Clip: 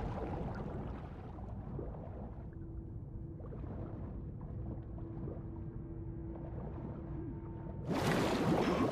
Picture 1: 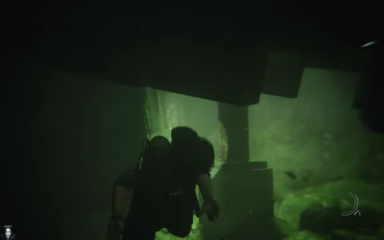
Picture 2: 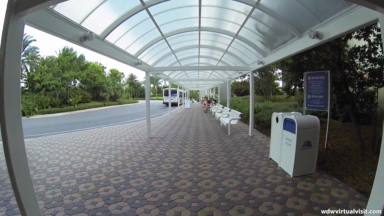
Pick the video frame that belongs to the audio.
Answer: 1